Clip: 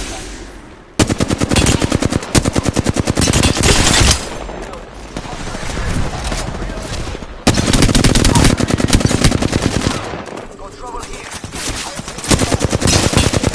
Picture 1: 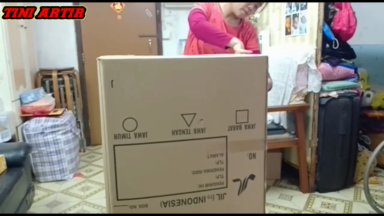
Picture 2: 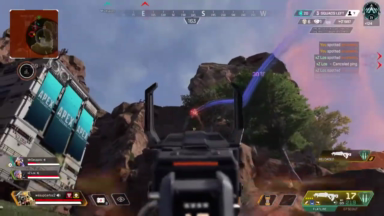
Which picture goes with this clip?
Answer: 2